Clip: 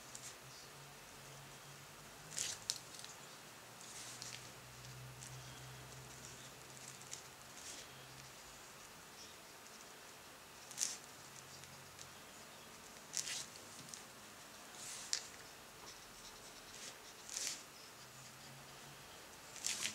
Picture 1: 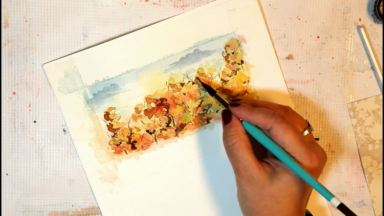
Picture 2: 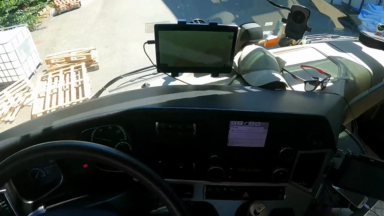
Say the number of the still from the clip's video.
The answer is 1